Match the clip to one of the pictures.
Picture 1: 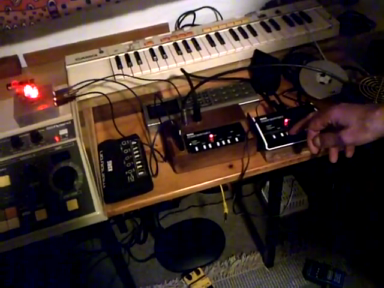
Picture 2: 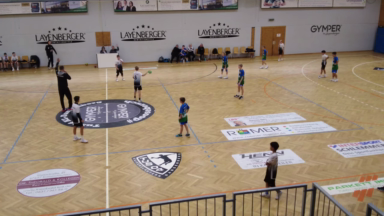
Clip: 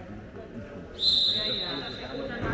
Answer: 2